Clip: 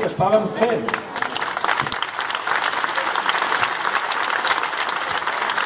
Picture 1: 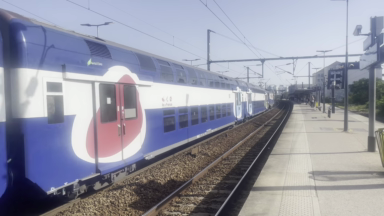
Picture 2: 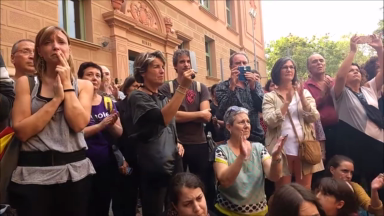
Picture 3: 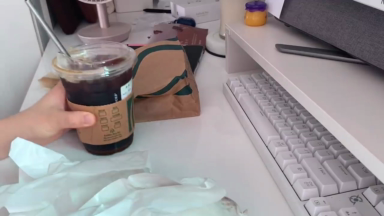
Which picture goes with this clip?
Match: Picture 2